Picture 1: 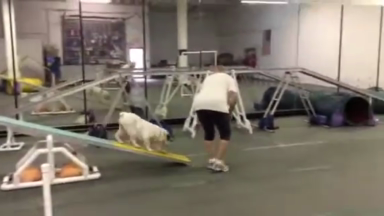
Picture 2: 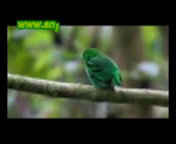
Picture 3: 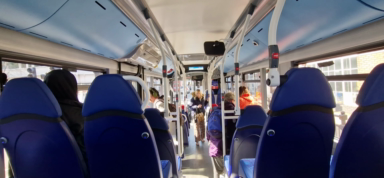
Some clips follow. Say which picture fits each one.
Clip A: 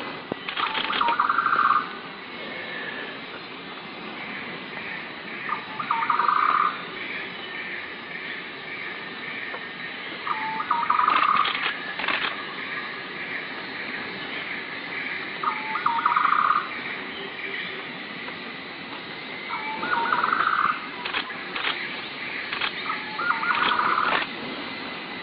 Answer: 2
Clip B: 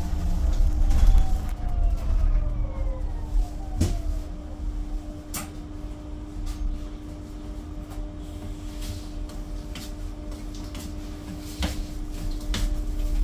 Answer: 3